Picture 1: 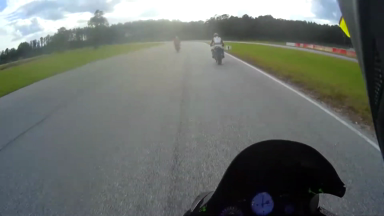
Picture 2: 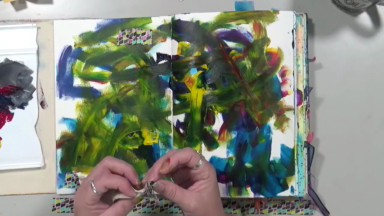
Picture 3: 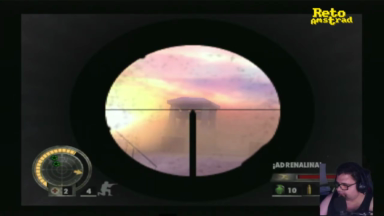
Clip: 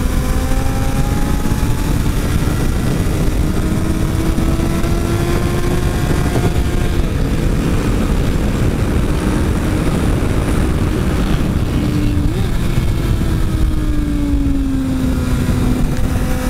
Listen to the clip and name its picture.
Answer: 1